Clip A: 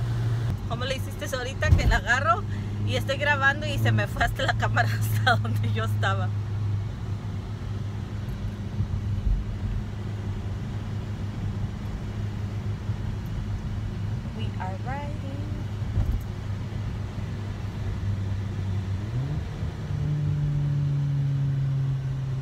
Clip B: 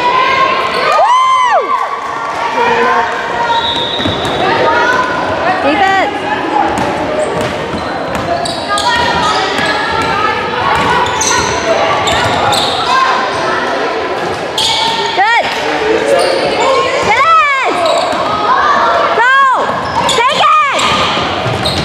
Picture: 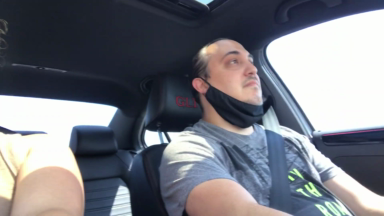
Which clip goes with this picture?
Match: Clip A